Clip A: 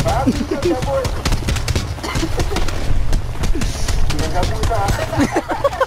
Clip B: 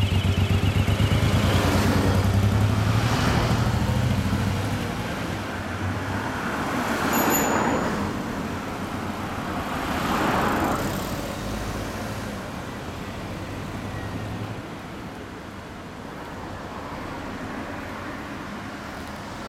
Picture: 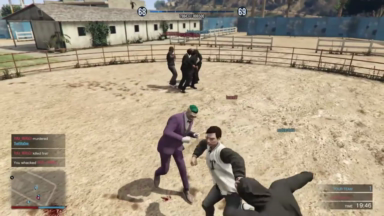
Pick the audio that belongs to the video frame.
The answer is A